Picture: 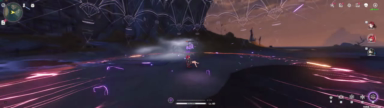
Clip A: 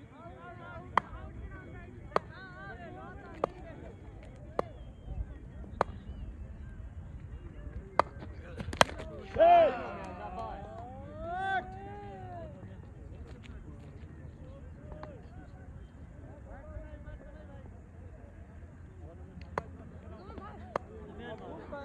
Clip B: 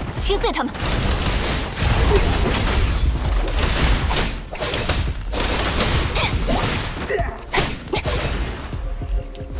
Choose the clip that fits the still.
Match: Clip B